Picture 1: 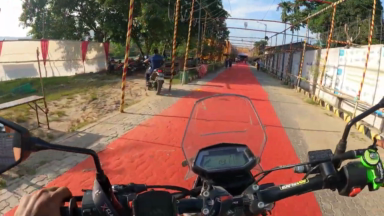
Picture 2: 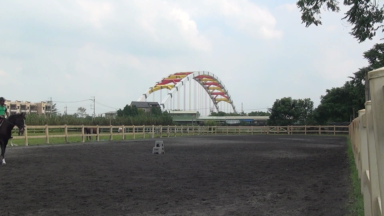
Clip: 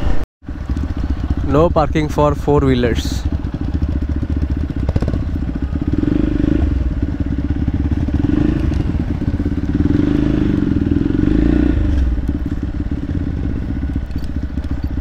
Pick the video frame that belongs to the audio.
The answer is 1